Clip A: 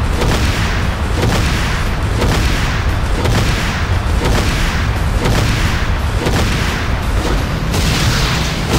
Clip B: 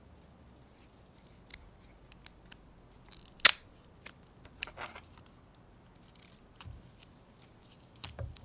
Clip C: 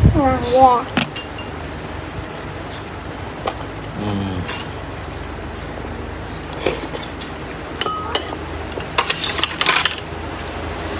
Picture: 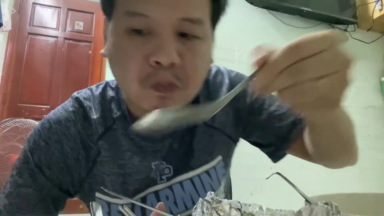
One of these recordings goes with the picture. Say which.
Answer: C